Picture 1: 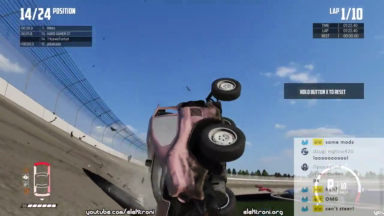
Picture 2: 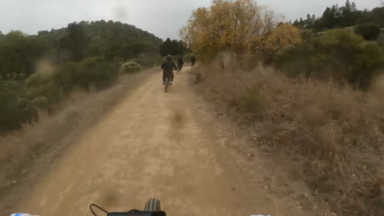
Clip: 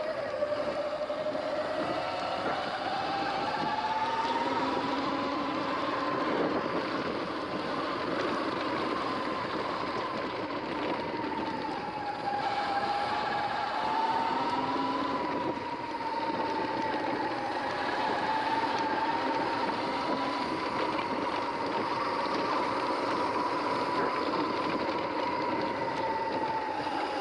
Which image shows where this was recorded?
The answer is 2